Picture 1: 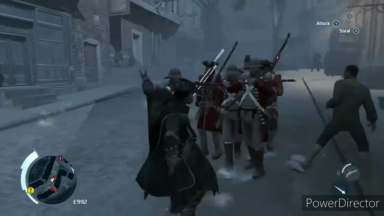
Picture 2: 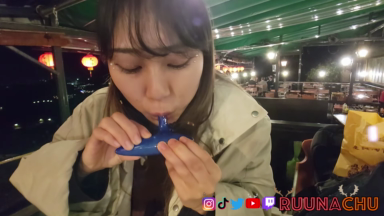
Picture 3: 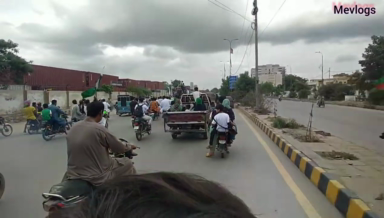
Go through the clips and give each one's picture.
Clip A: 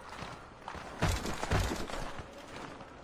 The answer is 1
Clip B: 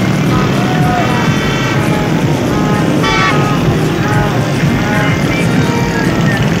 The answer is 3